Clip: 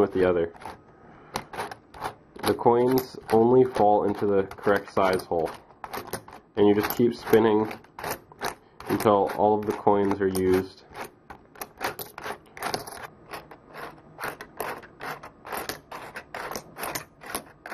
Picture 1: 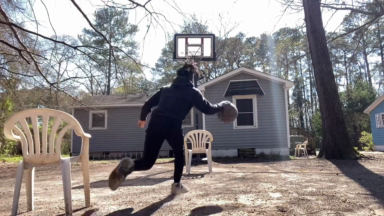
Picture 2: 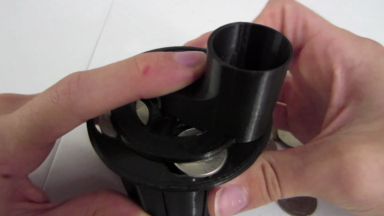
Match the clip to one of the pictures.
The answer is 2